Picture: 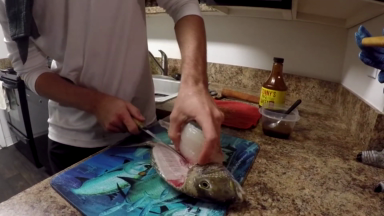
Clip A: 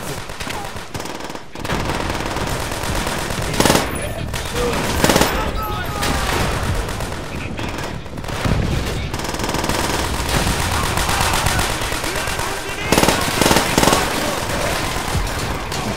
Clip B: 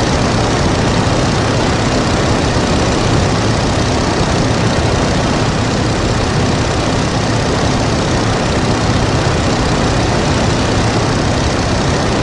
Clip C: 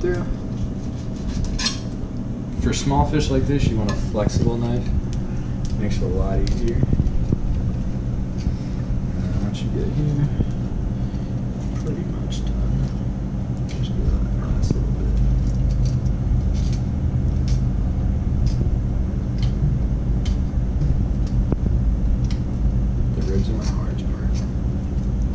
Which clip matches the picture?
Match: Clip C